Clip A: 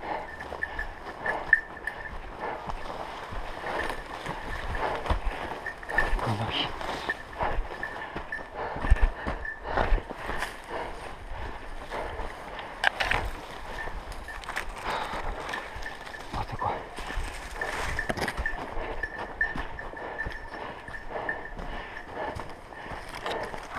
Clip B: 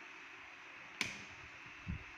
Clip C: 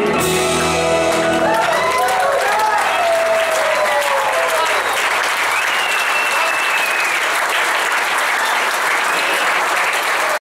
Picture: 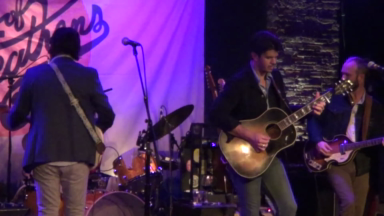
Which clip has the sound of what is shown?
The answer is C